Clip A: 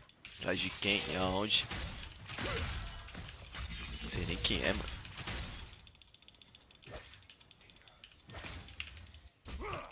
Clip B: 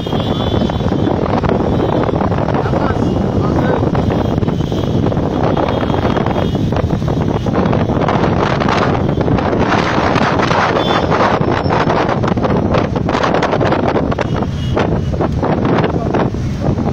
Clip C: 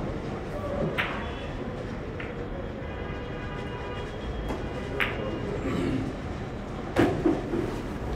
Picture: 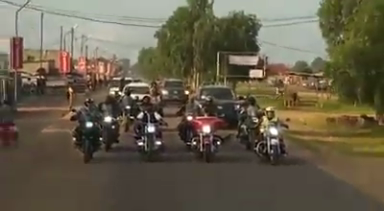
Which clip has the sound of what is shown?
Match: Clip B